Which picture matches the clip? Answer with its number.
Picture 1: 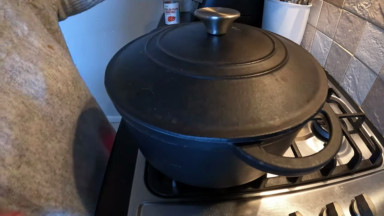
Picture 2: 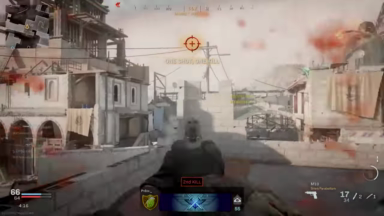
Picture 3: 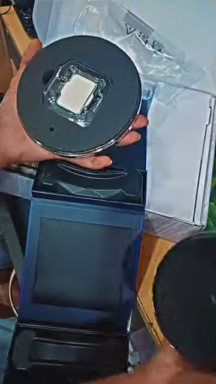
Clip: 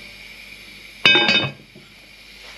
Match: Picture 1